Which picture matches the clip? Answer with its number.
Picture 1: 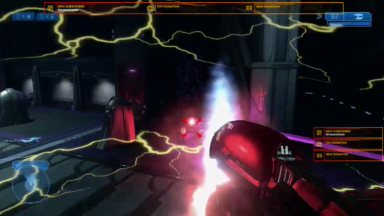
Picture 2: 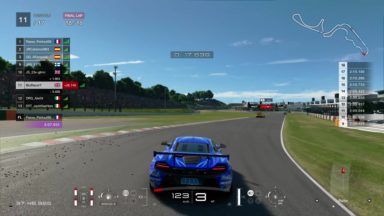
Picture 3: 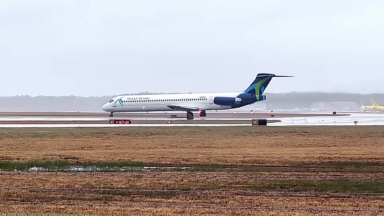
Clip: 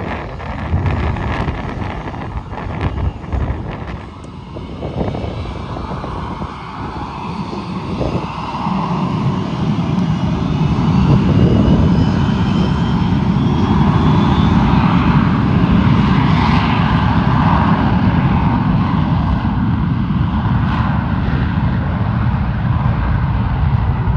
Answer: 3